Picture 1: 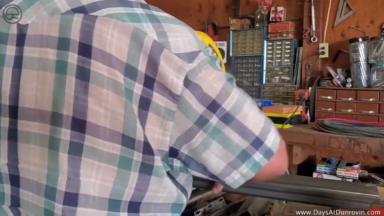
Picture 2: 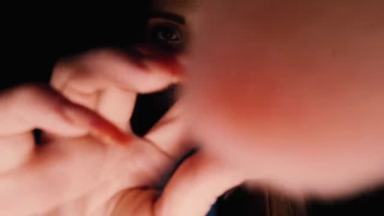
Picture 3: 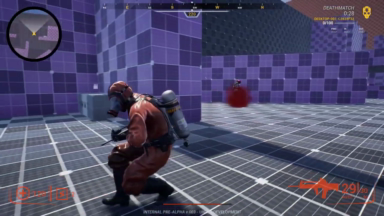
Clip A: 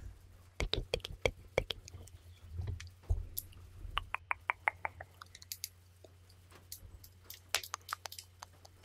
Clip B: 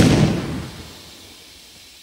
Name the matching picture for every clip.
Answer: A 2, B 3